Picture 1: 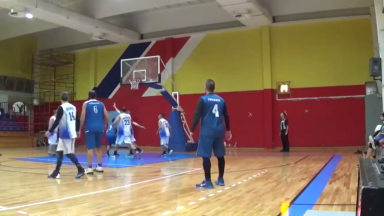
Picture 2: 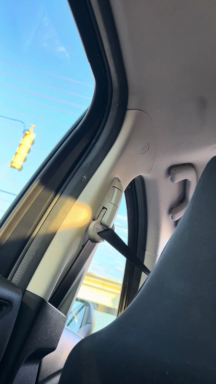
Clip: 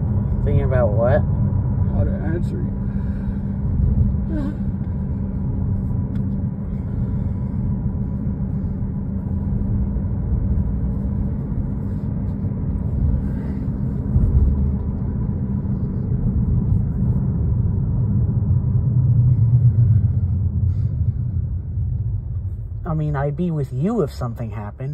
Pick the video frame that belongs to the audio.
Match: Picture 2